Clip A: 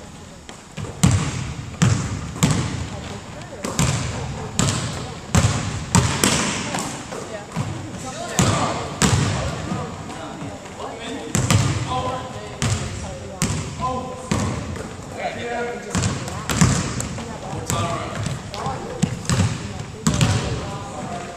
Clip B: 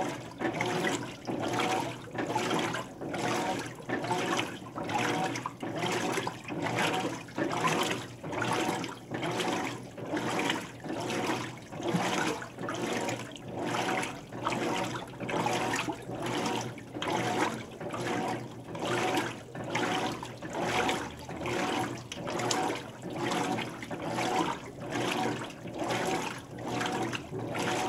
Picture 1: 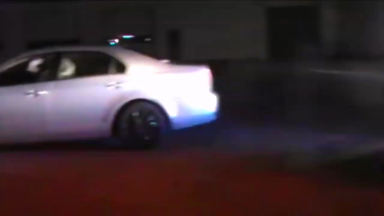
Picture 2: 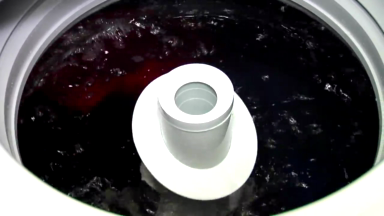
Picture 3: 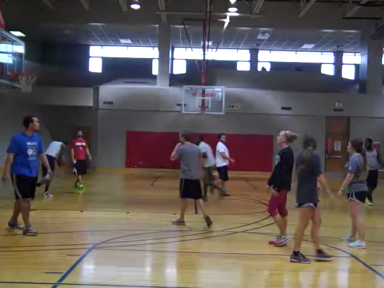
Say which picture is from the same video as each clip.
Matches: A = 3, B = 2